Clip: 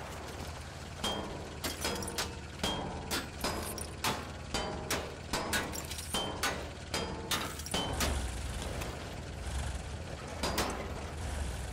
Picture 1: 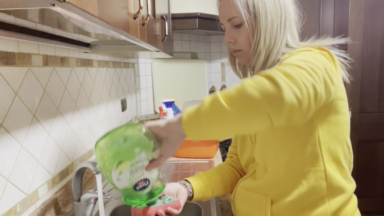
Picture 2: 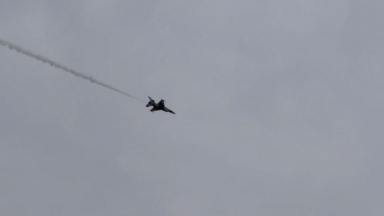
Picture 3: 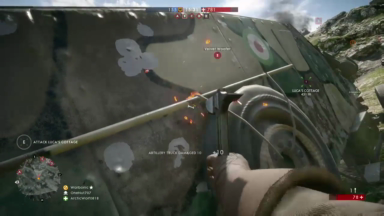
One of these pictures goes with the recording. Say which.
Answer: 3